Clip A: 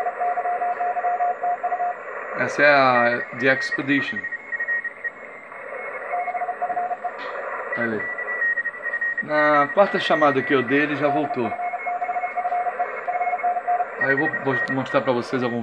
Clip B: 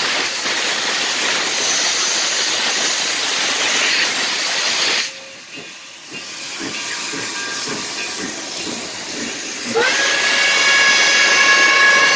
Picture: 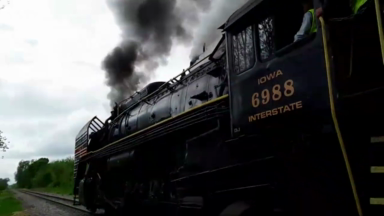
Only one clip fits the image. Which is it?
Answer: B